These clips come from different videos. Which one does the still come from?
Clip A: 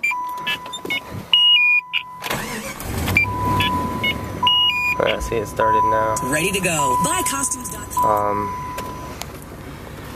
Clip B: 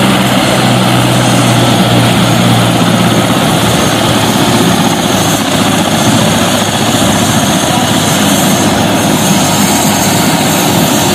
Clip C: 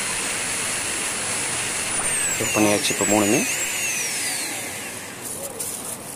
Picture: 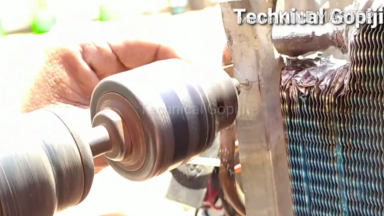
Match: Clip C